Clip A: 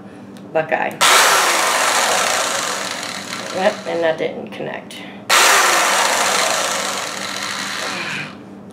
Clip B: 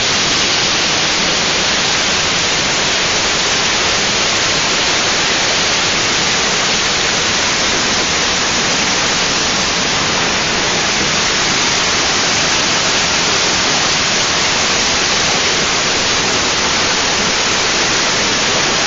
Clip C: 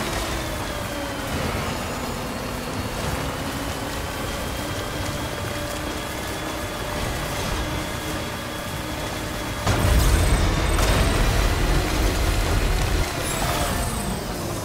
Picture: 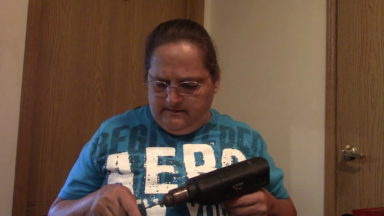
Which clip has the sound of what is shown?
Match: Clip A